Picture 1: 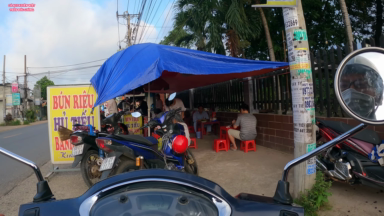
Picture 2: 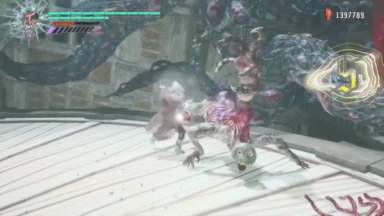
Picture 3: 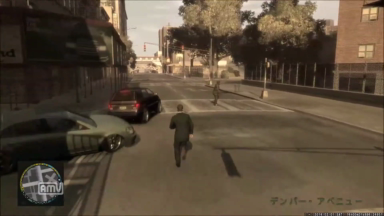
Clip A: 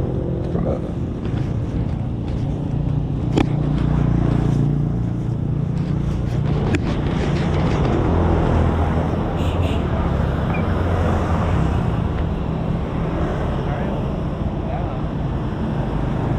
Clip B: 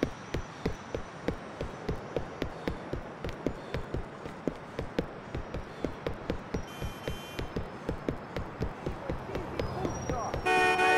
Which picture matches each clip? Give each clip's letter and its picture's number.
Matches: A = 1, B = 3